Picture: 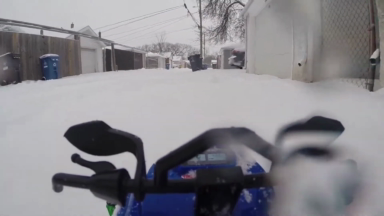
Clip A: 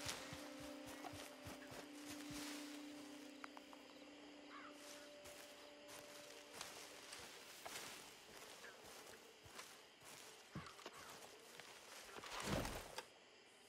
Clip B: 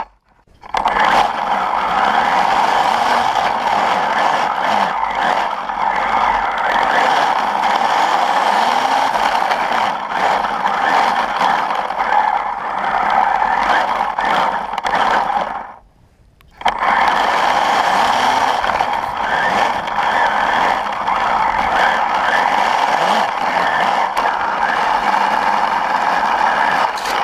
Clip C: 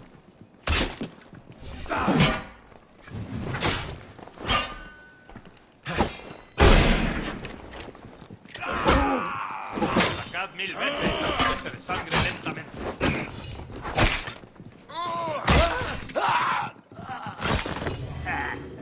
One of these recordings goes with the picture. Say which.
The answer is B